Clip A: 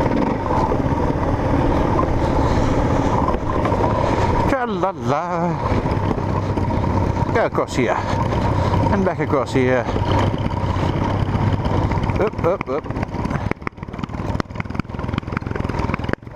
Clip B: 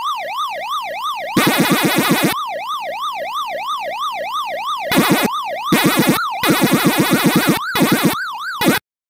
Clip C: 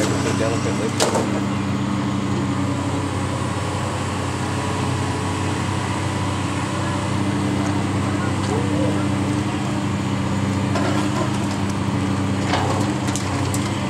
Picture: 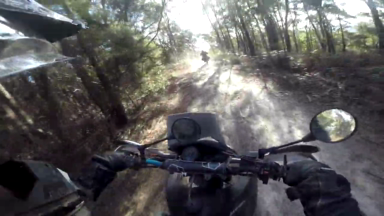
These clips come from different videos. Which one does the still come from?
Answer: A